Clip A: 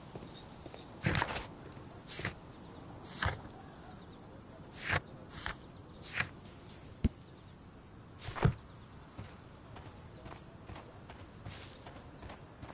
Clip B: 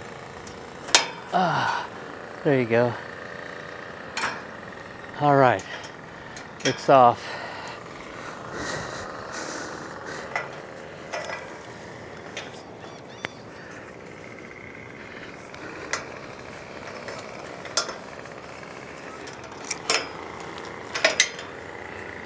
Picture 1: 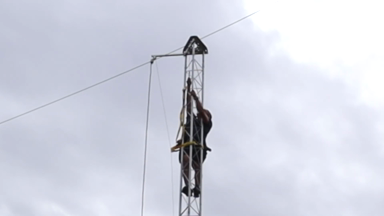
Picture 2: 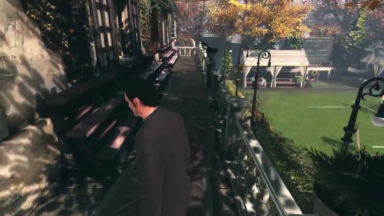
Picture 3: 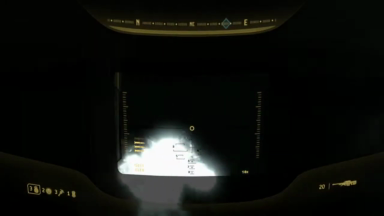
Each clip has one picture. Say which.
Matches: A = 2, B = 1